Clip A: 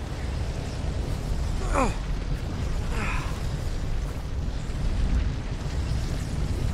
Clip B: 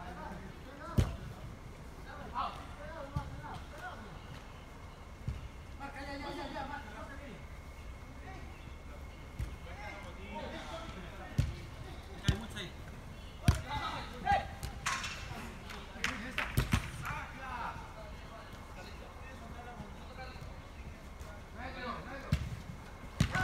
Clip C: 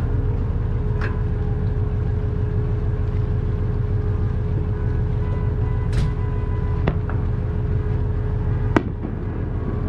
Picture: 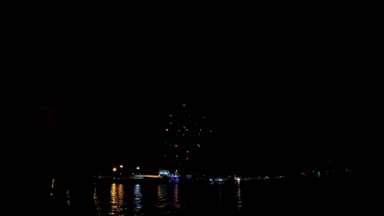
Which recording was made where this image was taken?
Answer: C